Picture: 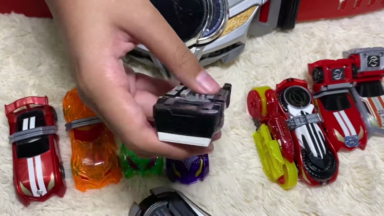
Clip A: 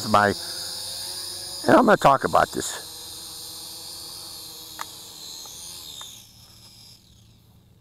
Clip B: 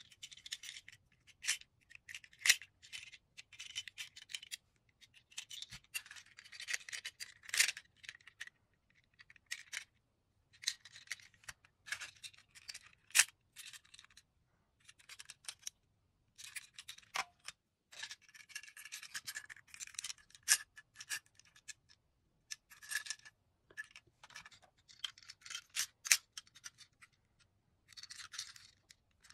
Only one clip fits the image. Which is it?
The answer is B